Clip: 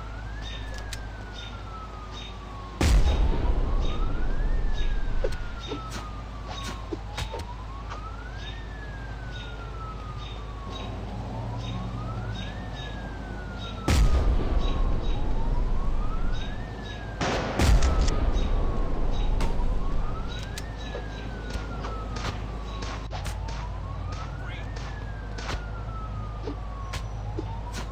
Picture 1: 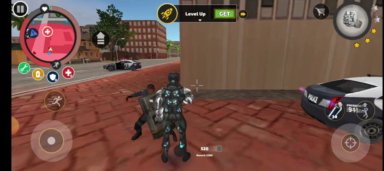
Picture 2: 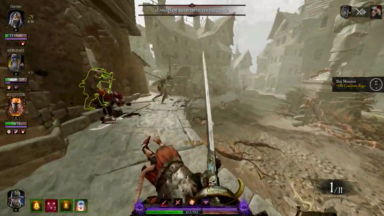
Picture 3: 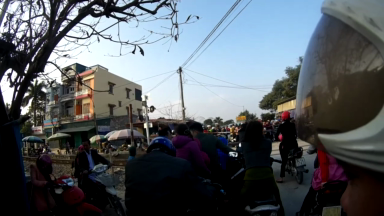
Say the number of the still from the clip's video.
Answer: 1